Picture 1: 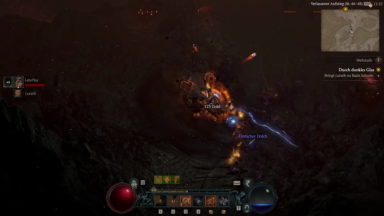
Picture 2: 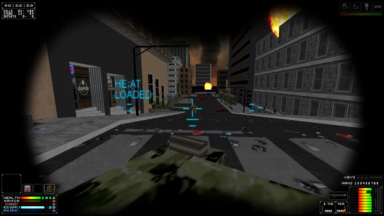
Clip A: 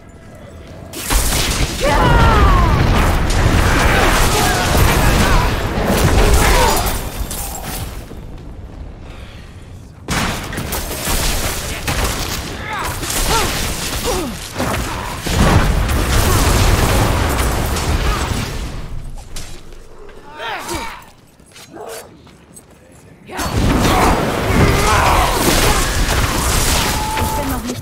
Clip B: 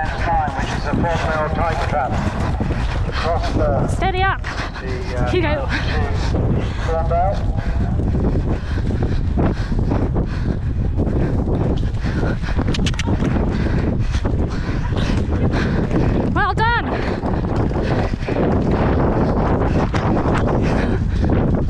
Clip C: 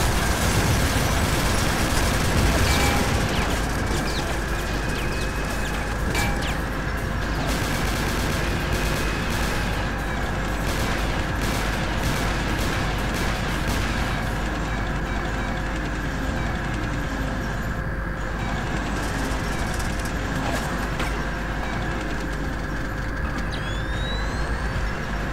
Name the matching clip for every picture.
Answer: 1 A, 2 C